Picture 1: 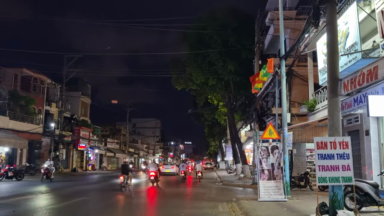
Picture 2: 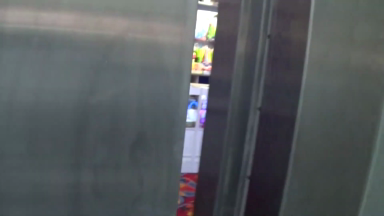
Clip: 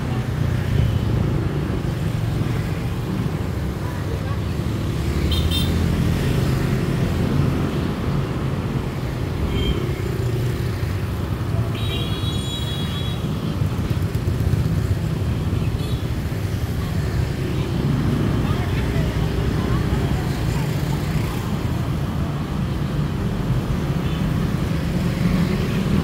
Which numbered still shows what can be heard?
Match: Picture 1